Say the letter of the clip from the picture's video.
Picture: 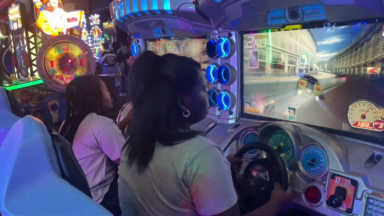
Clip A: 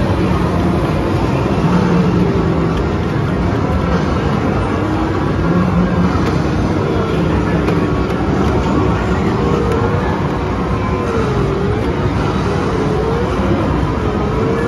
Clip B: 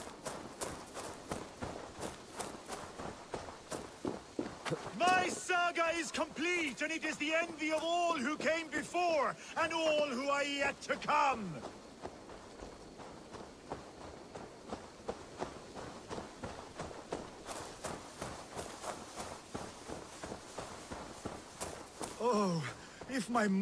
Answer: A